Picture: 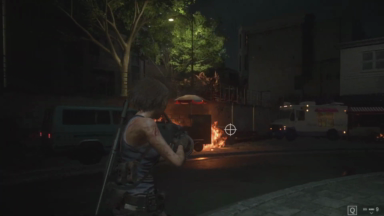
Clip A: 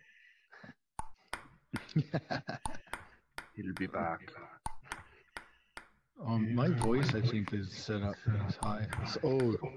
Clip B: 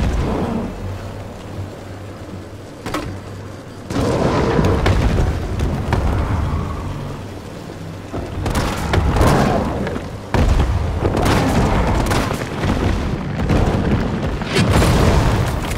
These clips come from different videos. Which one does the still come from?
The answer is B